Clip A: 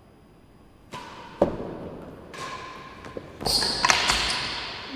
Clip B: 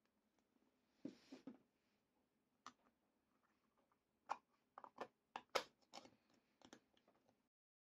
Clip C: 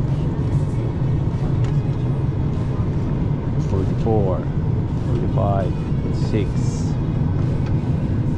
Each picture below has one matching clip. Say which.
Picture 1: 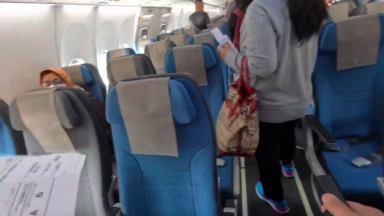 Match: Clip C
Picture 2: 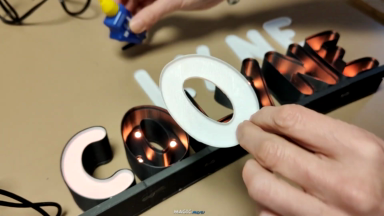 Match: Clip B